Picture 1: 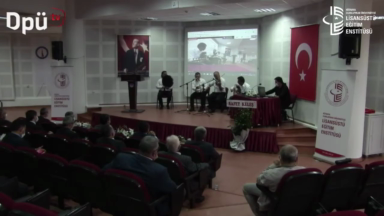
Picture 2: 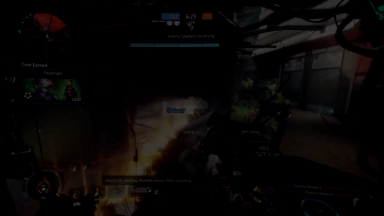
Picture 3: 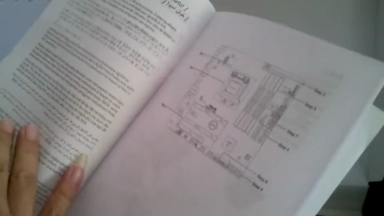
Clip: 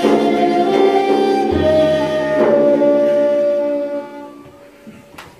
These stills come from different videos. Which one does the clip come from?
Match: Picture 1